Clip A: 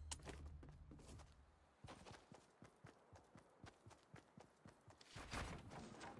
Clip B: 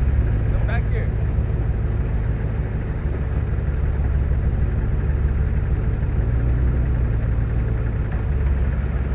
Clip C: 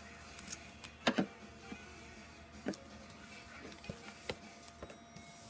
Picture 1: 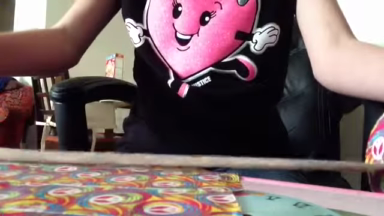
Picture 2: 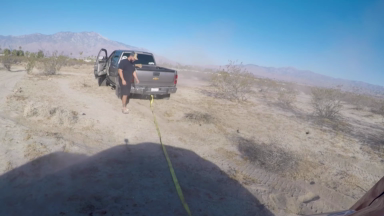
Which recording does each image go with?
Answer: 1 C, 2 B